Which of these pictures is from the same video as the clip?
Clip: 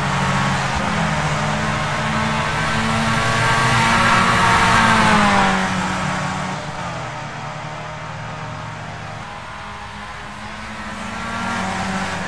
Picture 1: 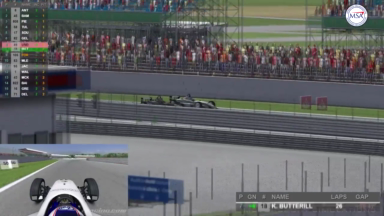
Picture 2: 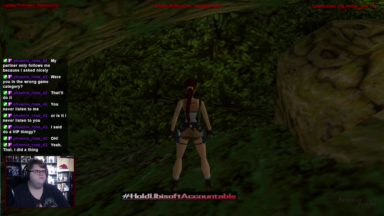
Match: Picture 1